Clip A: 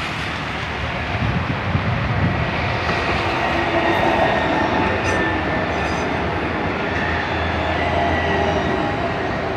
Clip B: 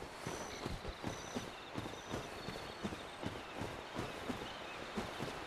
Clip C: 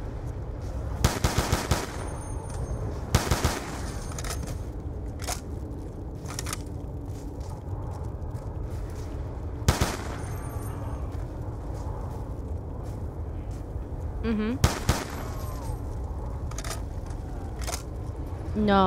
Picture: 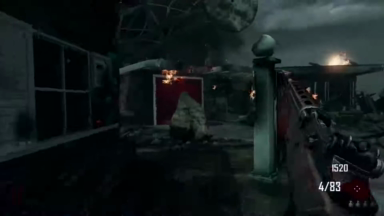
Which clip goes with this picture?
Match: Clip C